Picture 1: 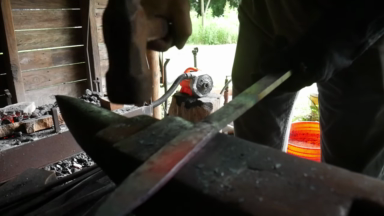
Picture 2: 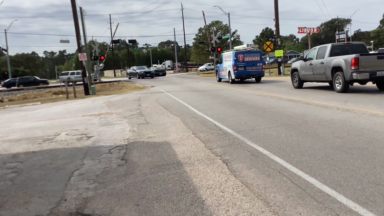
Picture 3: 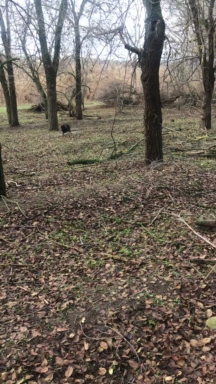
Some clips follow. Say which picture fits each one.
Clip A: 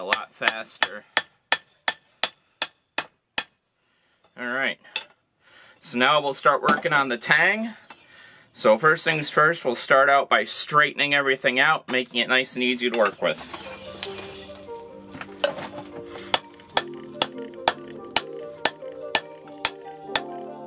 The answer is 1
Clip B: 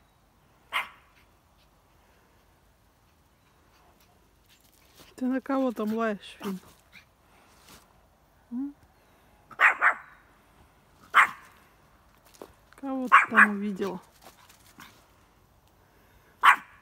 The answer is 3